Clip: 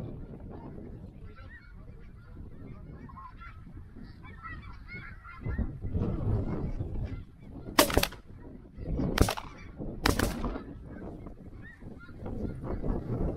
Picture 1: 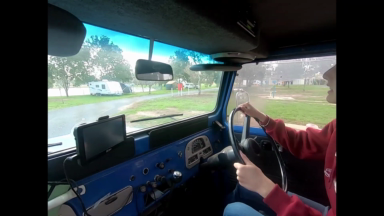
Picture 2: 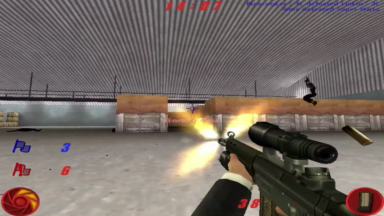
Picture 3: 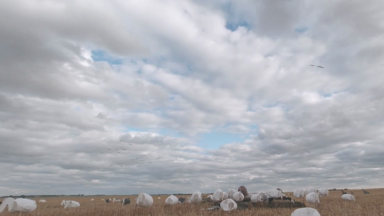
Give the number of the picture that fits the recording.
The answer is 3